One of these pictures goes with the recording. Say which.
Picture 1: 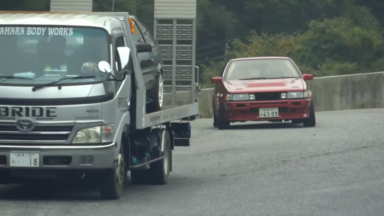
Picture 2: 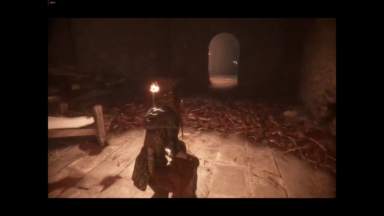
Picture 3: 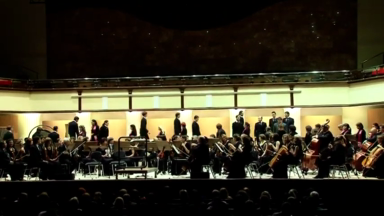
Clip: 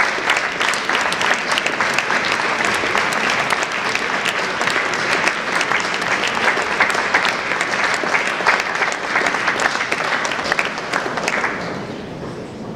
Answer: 3